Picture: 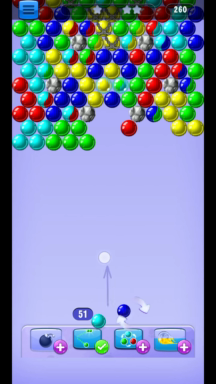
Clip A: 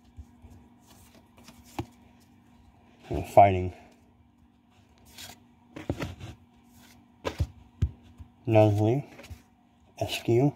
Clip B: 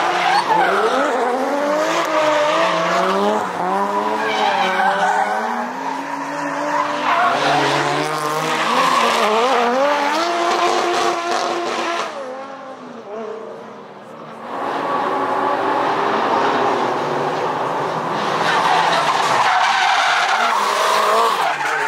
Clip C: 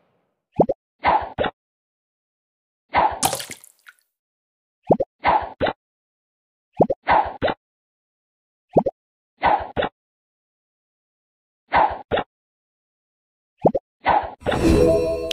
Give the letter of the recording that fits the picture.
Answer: C